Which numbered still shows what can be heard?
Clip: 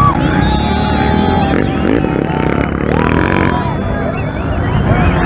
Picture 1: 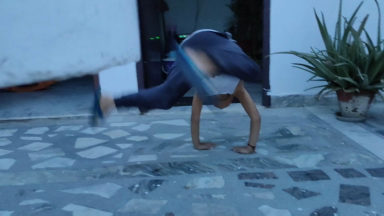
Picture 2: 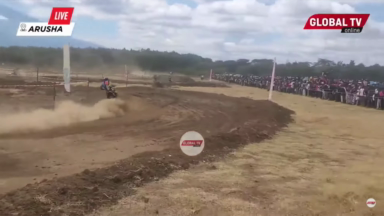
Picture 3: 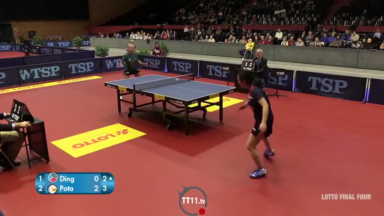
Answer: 2